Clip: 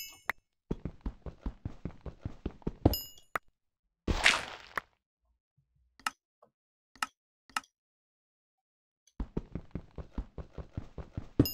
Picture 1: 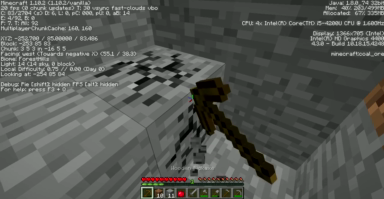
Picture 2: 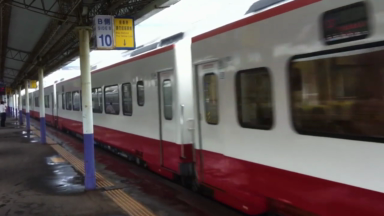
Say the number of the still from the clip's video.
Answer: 1